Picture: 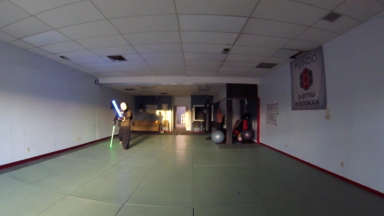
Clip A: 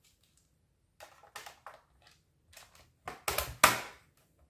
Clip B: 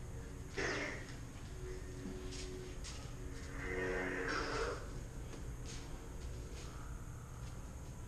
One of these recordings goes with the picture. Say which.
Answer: B